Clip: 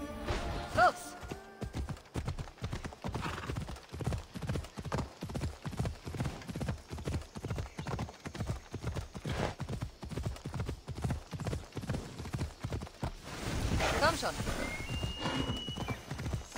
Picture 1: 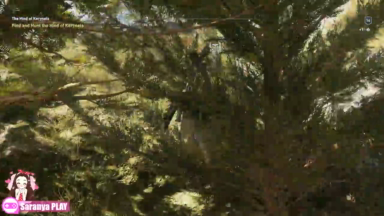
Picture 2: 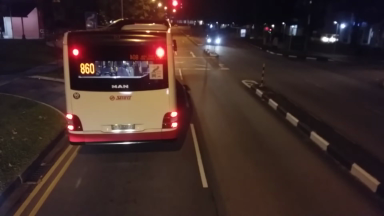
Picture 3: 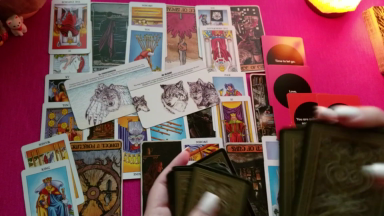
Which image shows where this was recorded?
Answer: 1